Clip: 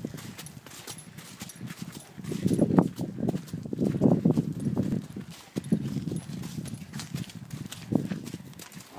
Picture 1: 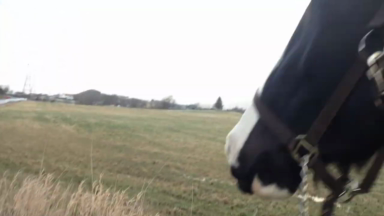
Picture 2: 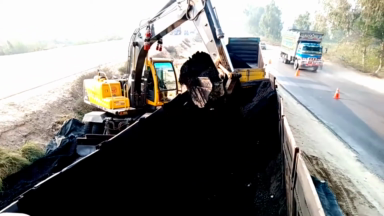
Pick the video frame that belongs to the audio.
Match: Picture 1